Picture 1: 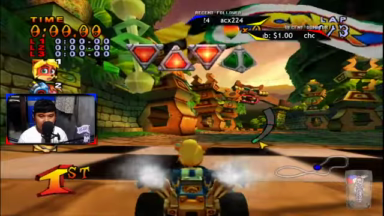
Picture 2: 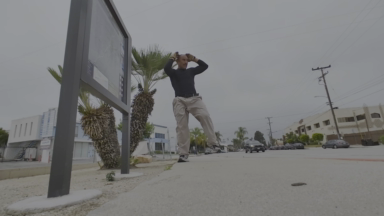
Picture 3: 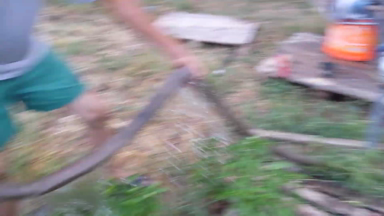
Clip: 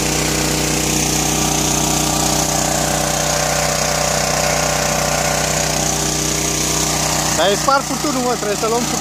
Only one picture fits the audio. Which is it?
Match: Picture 3